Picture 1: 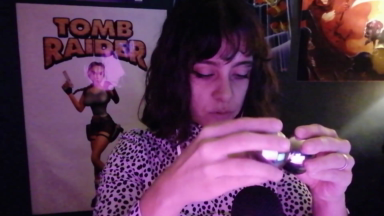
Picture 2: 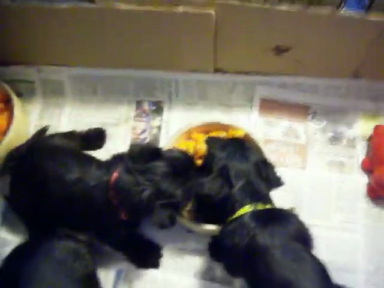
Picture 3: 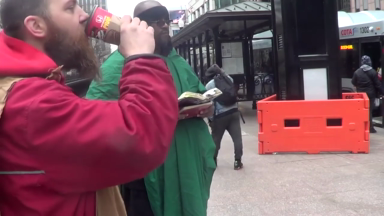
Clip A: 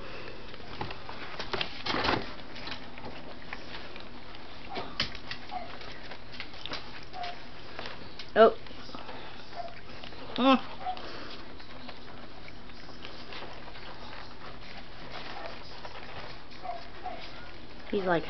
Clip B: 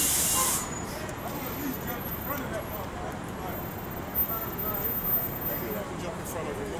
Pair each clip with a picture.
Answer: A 2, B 3